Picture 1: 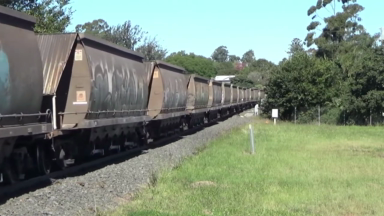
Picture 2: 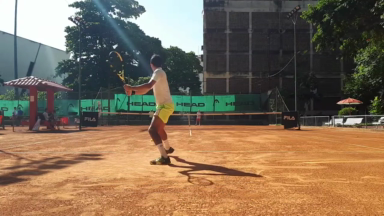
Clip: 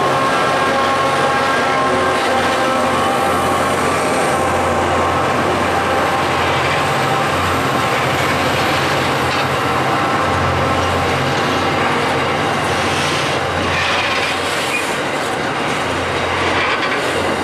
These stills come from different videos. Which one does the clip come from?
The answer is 1